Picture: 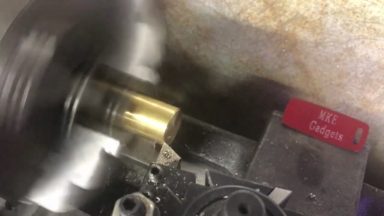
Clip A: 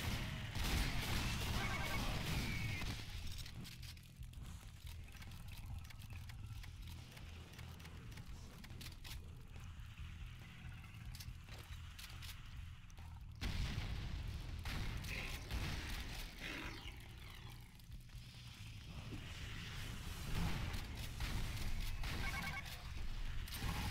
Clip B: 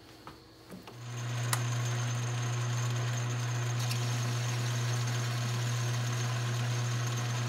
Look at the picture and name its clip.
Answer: B